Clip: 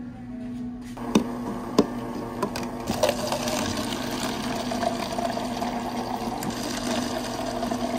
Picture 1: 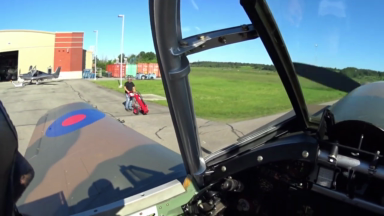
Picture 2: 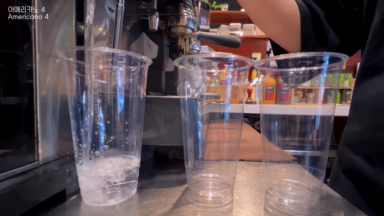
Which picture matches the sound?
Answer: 2